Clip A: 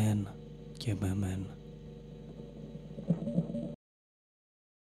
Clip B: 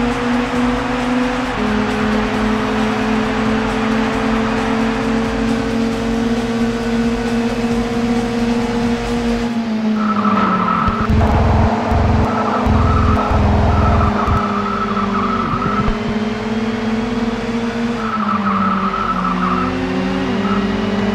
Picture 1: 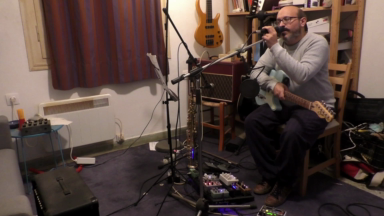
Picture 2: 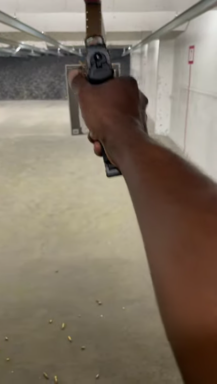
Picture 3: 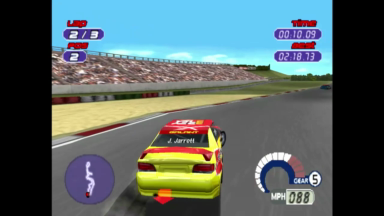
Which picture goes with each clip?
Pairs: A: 1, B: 3